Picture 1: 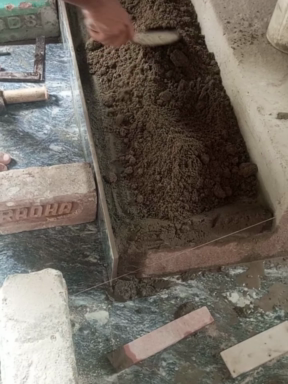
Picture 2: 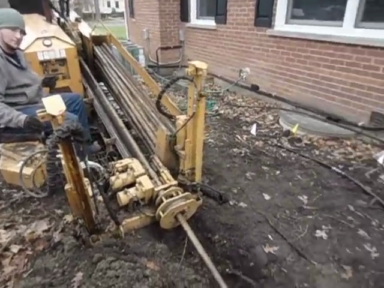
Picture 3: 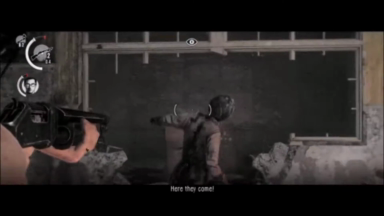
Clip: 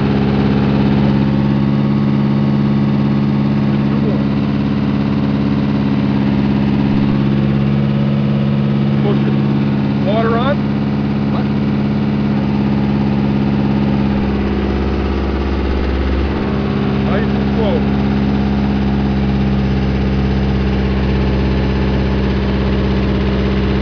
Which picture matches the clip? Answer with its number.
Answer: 2